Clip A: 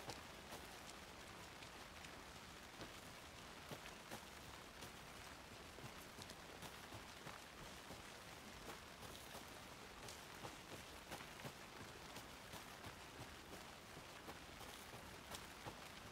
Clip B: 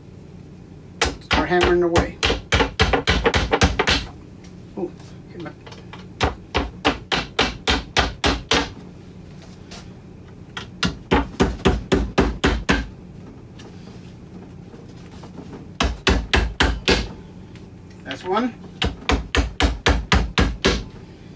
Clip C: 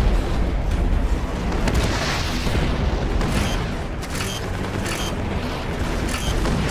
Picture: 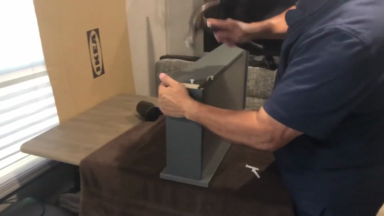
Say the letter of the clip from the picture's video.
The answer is B